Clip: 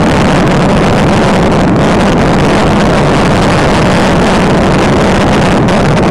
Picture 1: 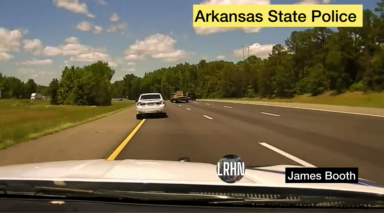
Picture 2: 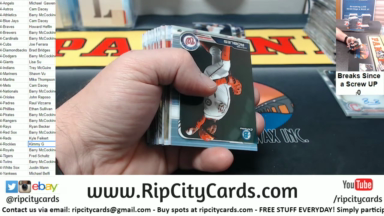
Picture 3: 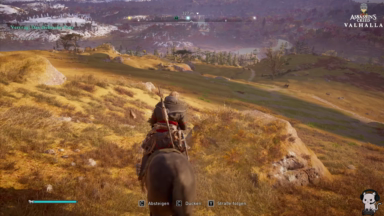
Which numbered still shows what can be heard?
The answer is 1